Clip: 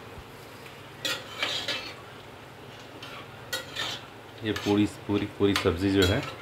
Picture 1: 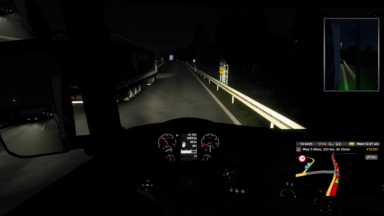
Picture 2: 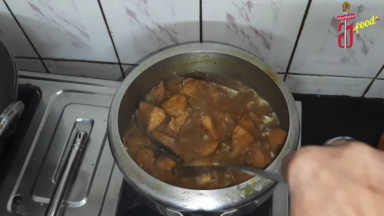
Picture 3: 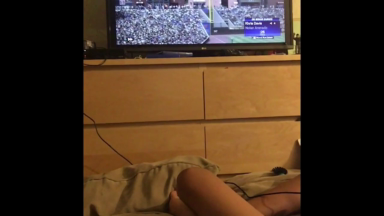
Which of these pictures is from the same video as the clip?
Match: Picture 2